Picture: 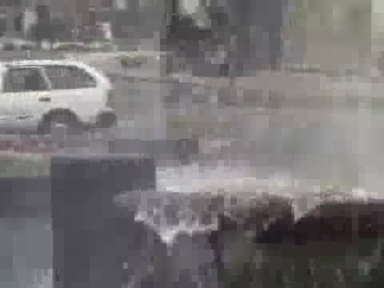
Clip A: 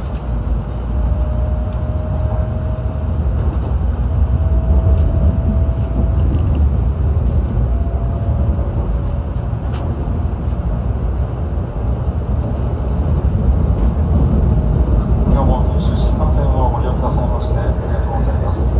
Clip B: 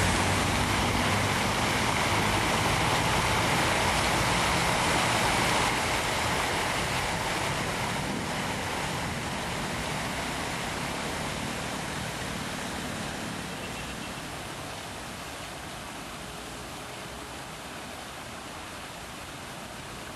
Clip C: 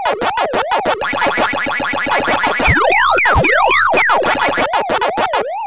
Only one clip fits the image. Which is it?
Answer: B